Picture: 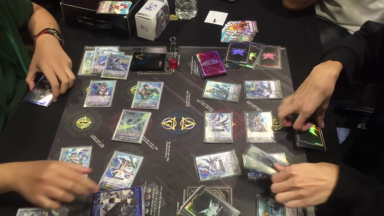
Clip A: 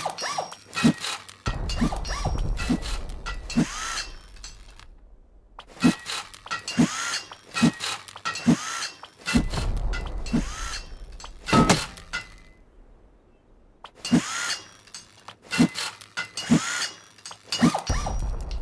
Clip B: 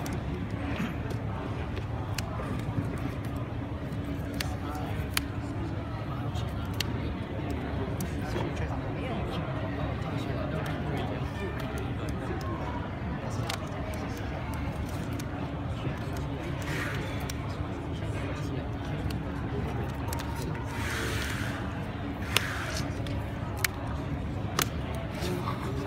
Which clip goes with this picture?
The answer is B